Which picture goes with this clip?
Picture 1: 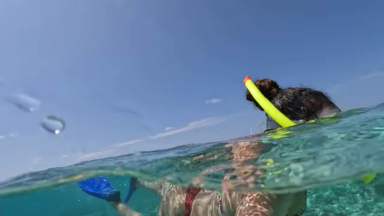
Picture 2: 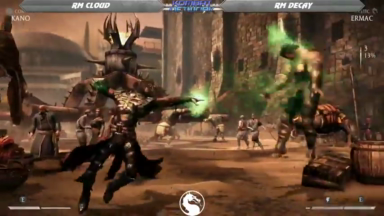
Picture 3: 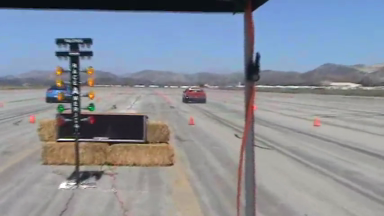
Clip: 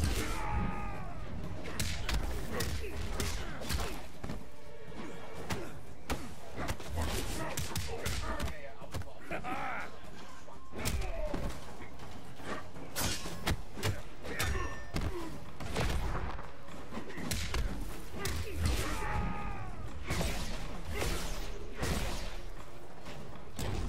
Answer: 2